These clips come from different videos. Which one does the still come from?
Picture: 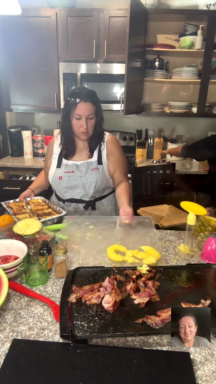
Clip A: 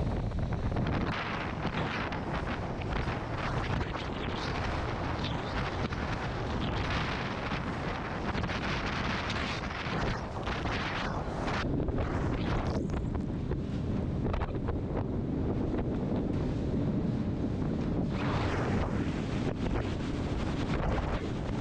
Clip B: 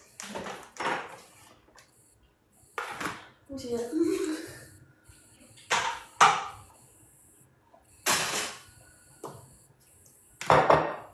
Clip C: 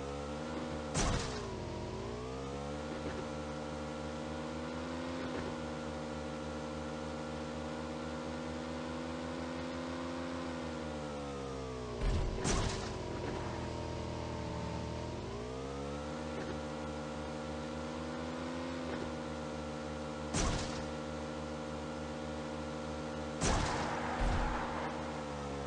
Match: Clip B